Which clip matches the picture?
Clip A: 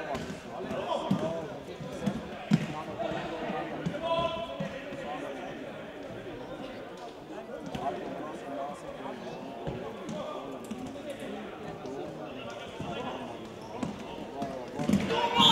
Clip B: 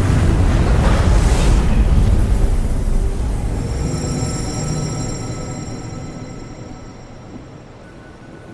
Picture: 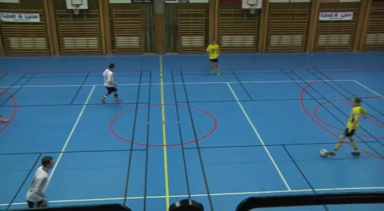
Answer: A